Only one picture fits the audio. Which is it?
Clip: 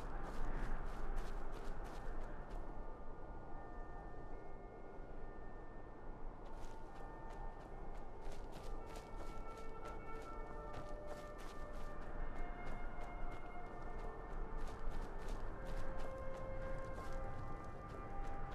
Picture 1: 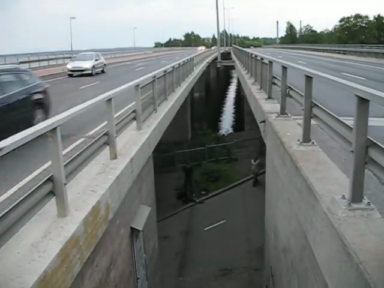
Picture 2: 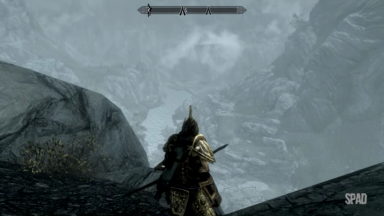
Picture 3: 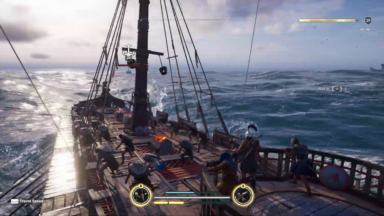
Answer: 2